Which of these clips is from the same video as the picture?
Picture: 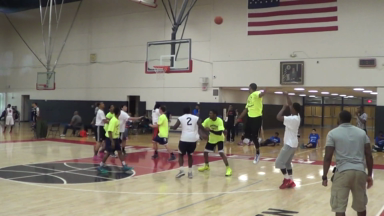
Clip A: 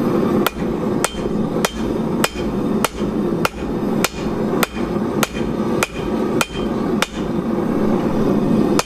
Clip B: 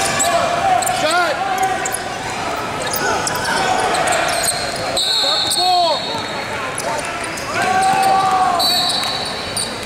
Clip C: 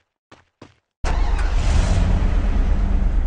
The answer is B